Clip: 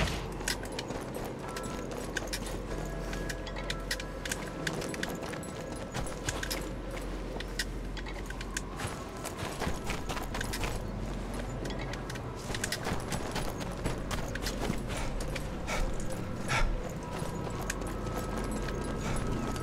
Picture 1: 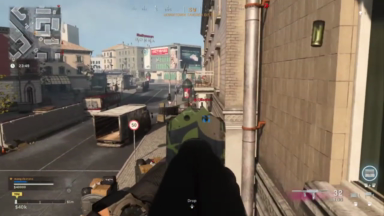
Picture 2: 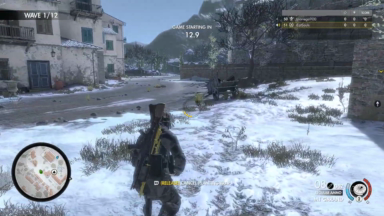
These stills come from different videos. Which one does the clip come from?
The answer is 2